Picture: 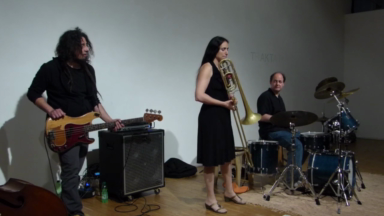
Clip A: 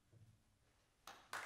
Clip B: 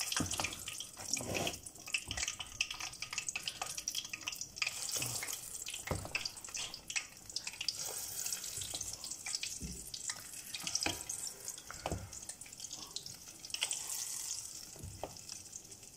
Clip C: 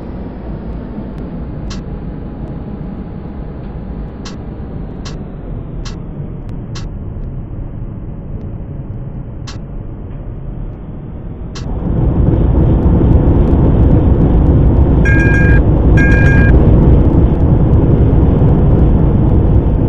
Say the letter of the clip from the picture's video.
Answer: A